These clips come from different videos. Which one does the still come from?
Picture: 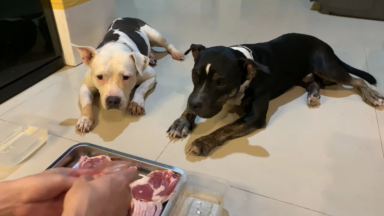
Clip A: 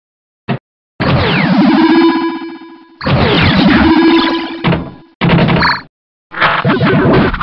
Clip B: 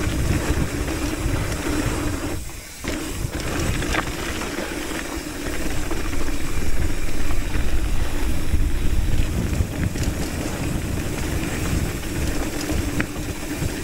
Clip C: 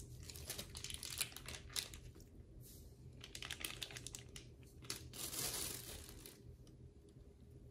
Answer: C